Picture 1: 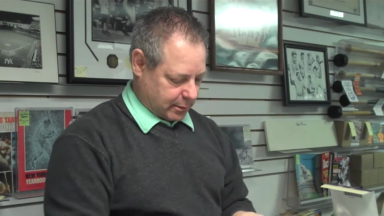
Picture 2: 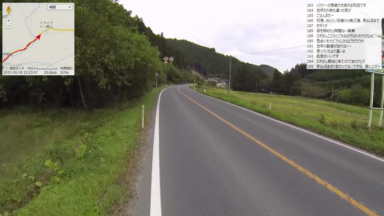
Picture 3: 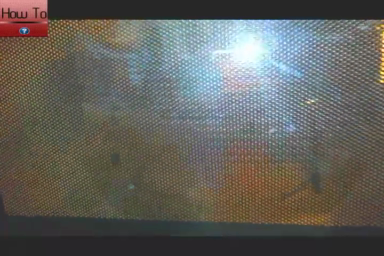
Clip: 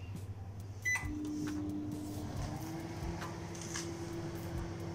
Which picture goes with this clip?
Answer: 3